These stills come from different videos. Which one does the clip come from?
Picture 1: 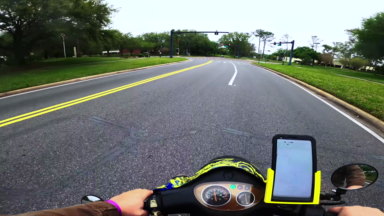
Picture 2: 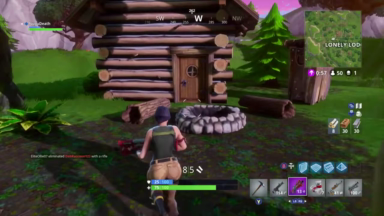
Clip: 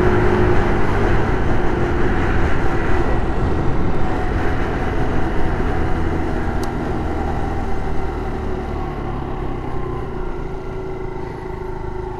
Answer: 1